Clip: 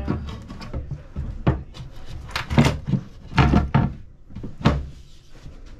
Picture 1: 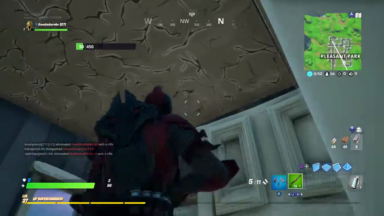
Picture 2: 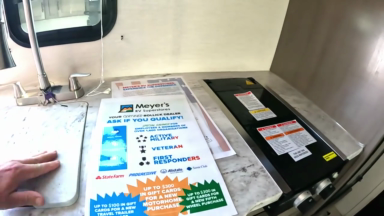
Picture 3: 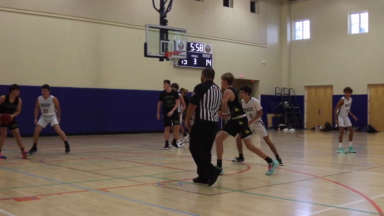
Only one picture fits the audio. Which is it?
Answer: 2